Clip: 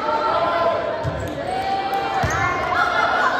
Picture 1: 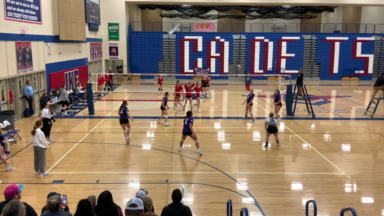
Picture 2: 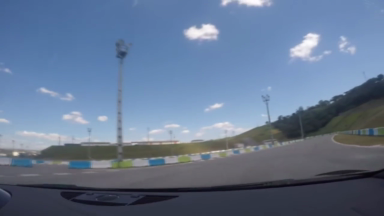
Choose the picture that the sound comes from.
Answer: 1